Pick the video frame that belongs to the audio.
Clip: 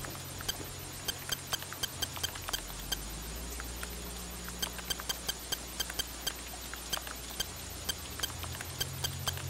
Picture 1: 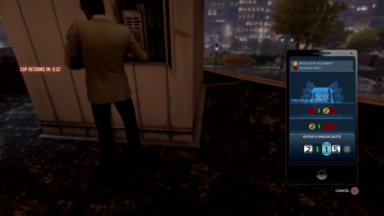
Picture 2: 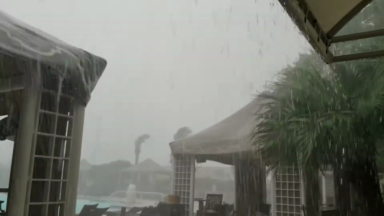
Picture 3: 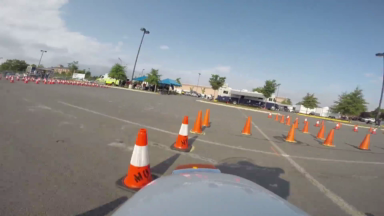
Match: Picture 1